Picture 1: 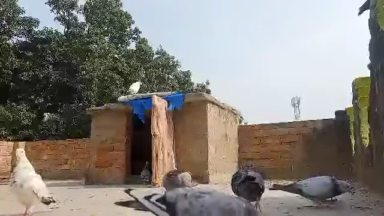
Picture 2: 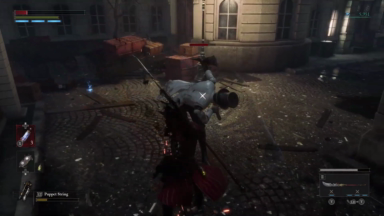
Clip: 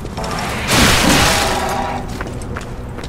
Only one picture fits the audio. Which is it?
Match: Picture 2